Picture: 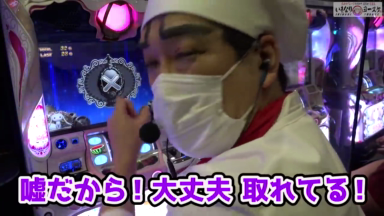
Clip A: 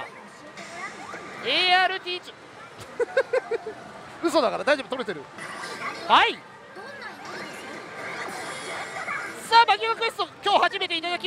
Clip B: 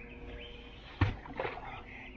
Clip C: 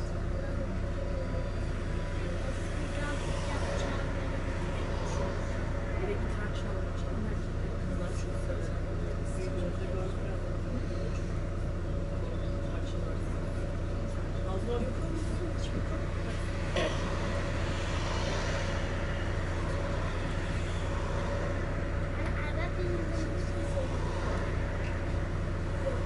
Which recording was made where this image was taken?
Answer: A